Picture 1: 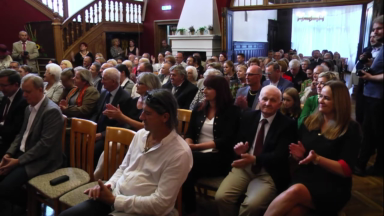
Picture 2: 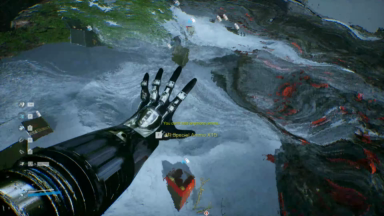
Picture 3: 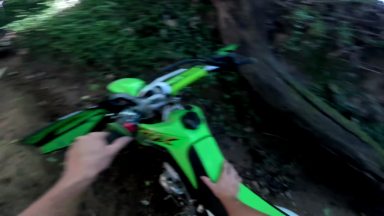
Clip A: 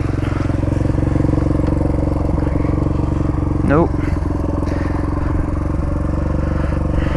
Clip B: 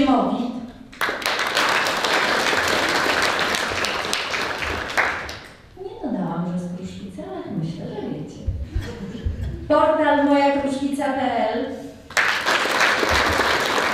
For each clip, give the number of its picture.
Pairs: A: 3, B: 1